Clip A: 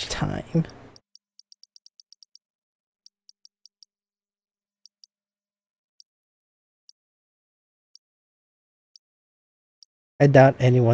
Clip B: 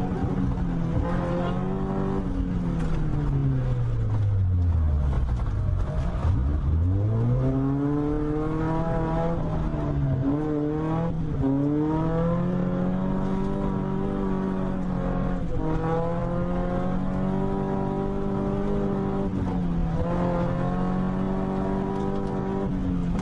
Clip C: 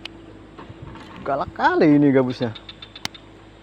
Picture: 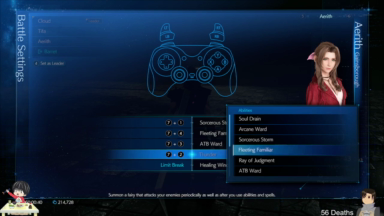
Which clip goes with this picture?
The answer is A